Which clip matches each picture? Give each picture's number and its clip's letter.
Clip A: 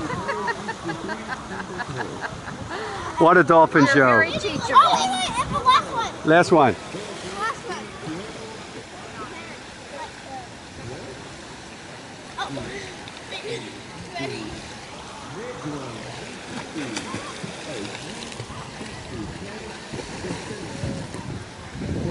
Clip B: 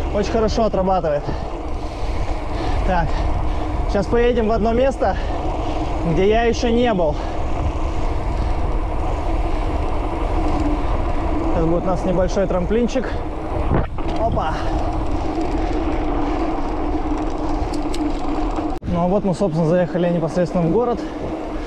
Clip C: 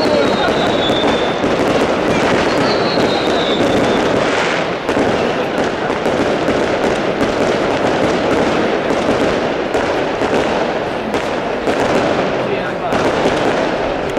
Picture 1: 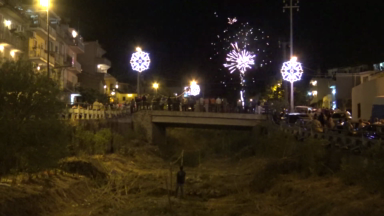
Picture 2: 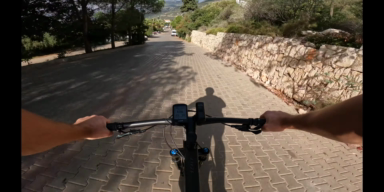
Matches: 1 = C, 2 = B